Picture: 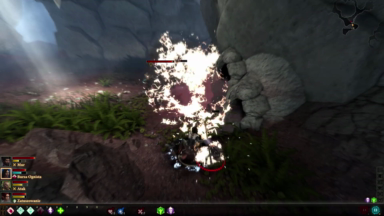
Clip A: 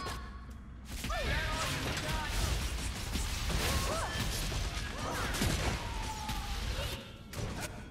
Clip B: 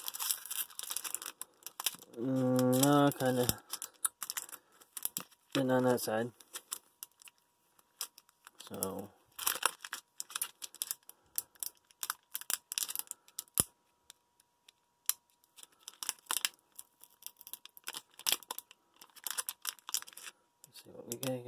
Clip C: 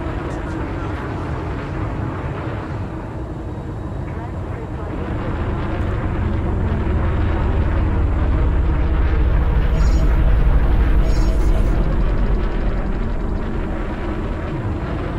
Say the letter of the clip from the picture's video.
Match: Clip A